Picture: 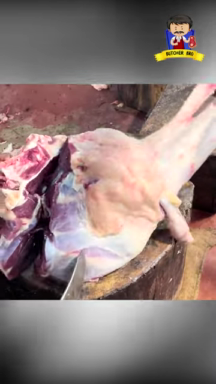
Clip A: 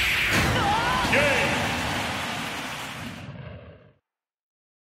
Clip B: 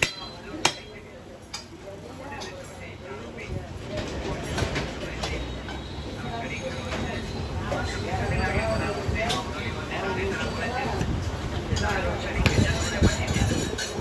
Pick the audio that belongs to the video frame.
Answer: B